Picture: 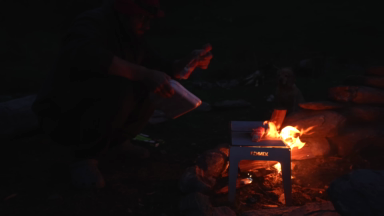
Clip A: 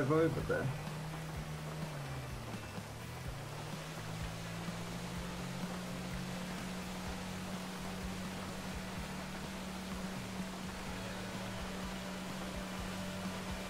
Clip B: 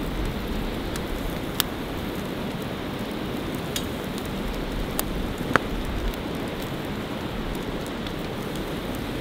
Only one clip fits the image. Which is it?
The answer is B